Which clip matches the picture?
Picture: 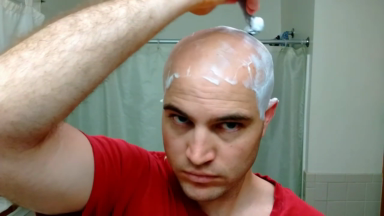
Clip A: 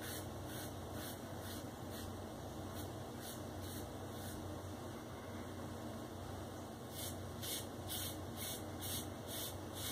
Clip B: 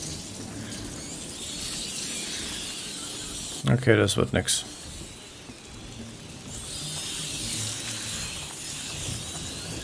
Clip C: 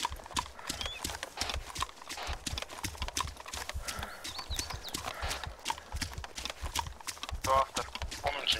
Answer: A